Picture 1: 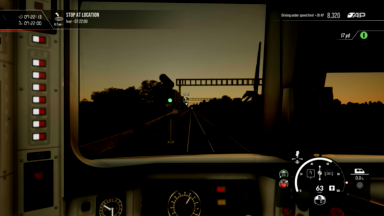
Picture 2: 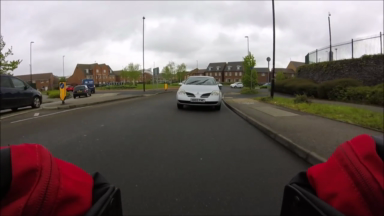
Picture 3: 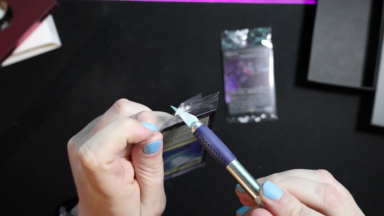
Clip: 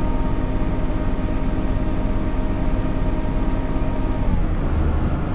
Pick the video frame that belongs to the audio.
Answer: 1